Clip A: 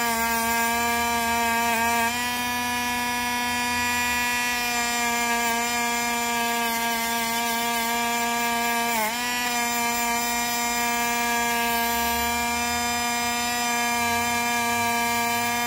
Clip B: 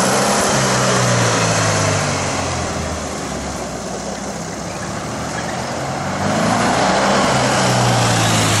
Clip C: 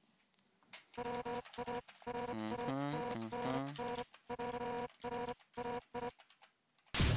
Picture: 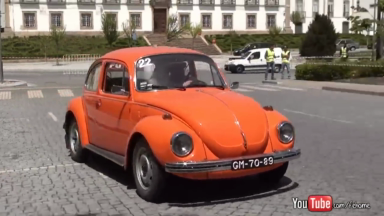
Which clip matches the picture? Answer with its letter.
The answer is B